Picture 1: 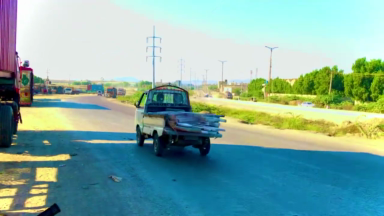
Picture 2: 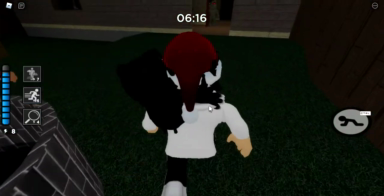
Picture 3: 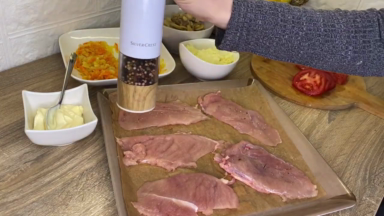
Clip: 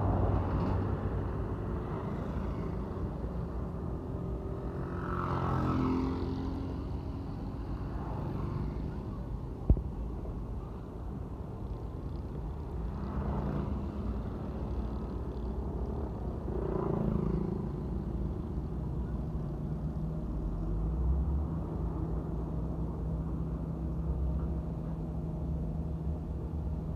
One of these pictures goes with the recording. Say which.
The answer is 1